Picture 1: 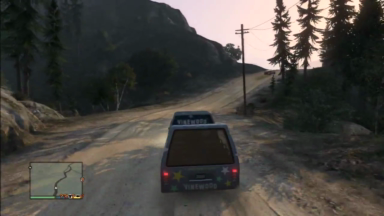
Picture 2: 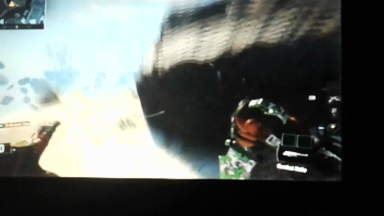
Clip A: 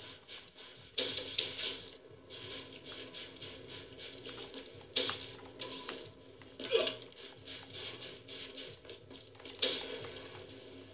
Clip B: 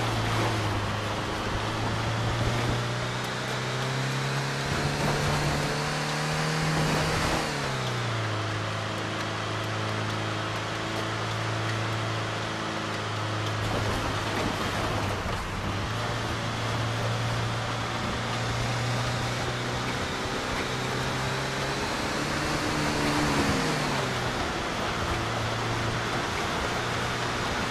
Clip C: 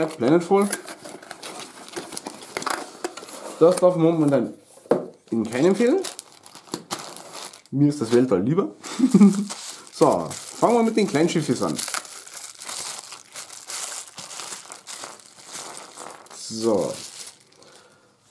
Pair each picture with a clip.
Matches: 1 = B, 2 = A